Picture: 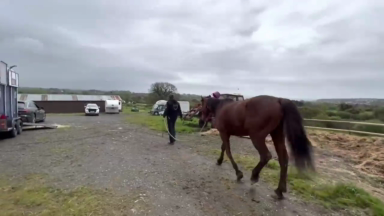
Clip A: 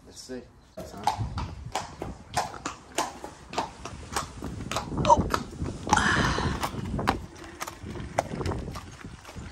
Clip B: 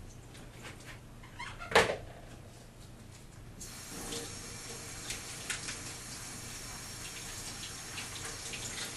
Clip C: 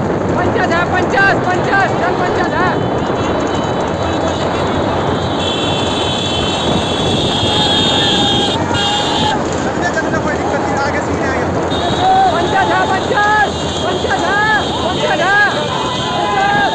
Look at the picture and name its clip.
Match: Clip A